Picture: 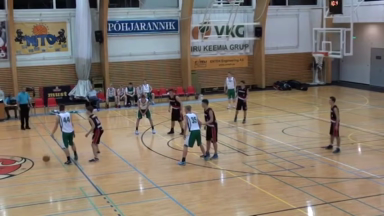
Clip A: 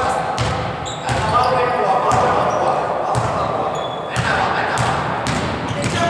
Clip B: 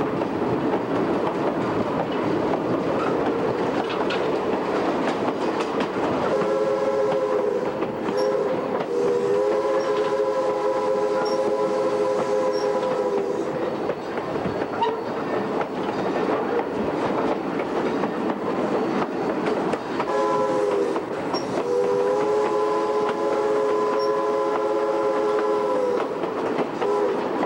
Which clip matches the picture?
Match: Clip A